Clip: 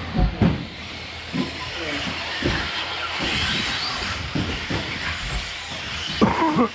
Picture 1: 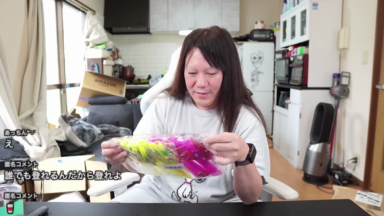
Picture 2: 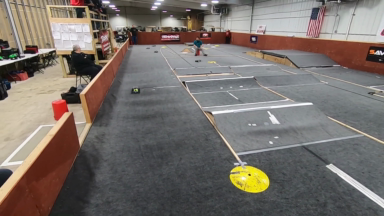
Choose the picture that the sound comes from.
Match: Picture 2